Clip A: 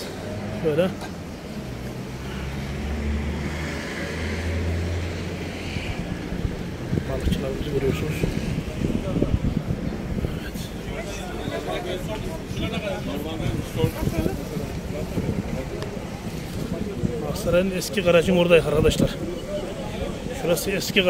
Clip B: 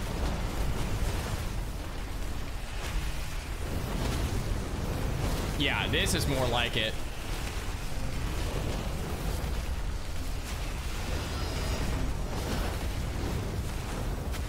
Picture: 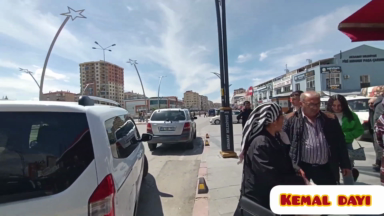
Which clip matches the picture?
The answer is A